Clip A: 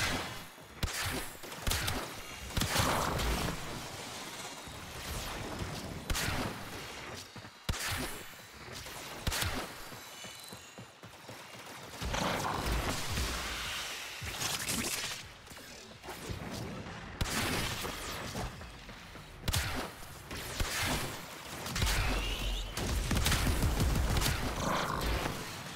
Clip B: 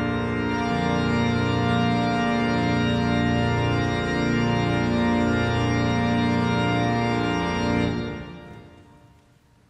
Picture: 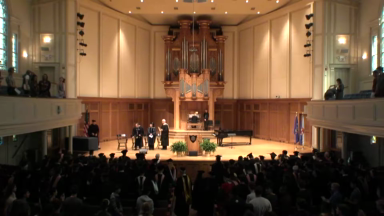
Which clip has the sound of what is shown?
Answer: B